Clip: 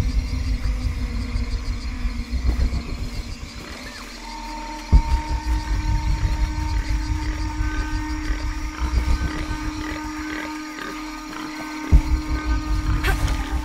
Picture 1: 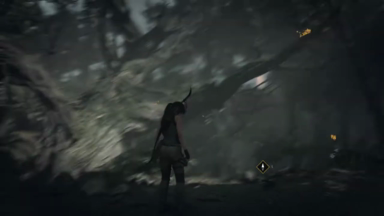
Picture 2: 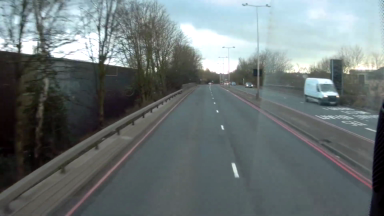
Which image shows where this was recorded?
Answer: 1